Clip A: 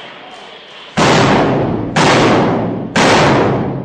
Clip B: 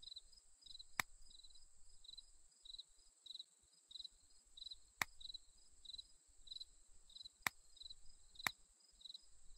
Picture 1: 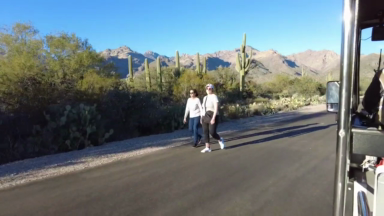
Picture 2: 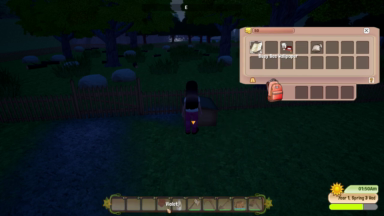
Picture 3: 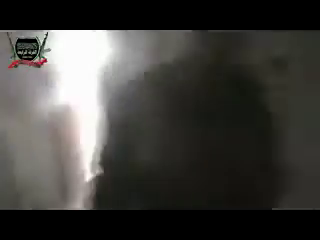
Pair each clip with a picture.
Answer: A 3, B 2